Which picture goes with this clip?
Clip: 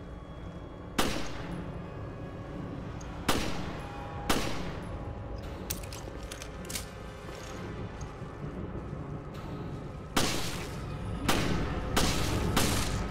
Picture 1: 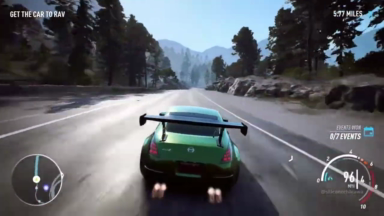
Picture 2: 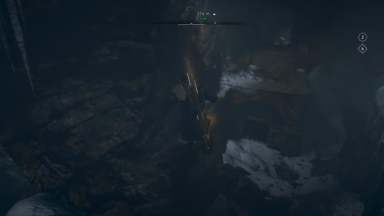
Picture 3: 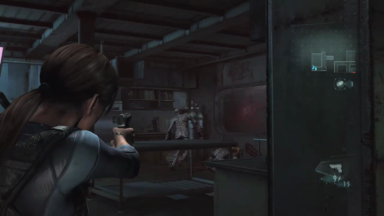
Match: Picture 3